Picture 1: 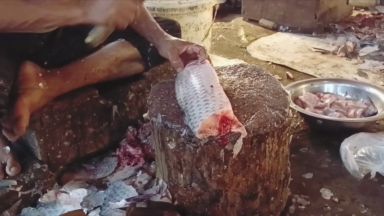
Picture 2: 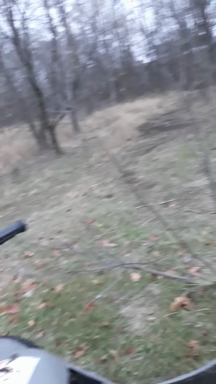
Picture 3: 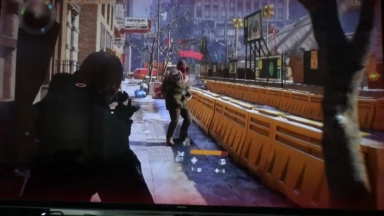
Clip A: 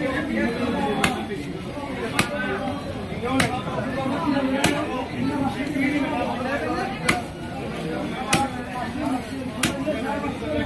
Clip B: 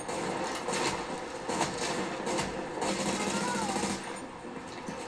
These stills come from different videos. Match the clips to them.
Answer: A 1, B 3